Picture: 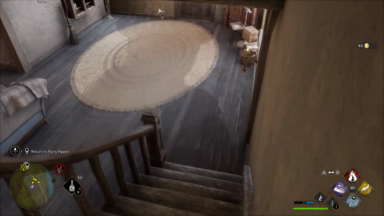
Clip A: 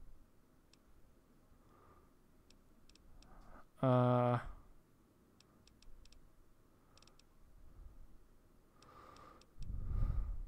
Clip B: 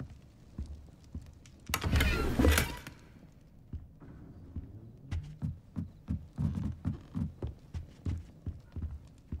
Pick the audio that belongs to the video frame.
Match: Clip B